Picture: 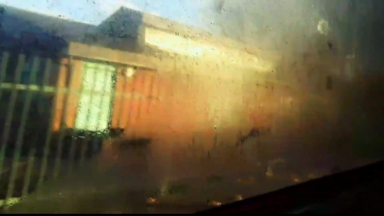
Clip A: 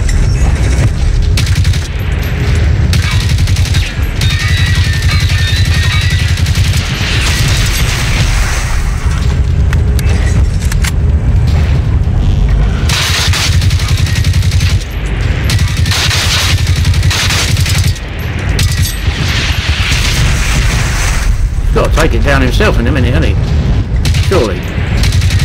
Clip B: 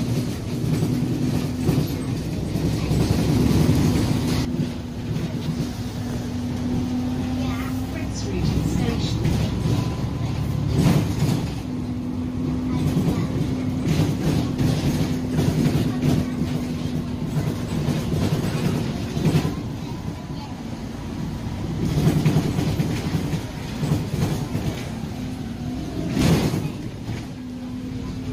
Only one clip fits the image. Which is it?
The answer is B